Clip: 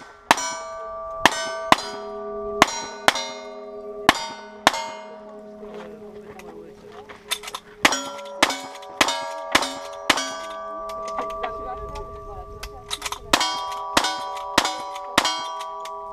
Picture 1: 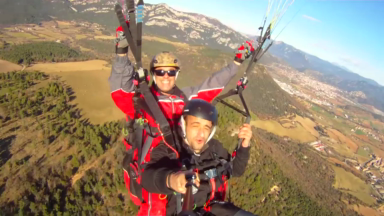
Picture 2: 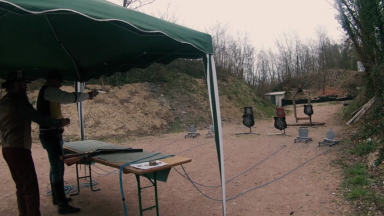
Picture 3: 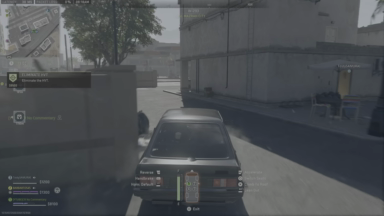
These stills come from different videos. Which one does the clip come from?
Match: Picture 2